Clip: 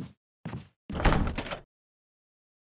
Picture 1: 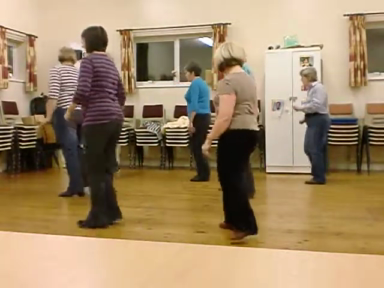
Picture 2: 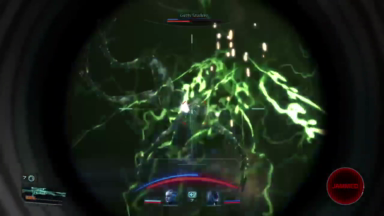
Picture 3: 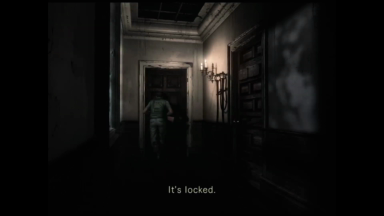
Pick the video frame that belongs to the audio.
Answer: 3